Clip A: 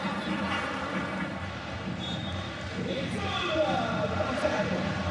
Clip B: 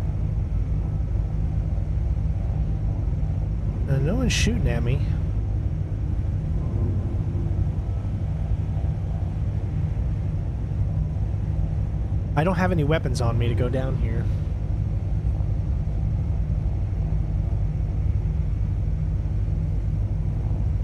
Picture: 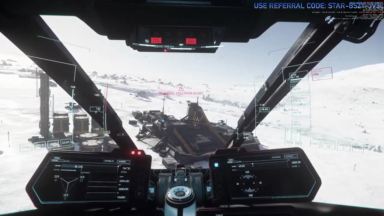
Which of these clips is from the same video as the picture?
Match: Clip B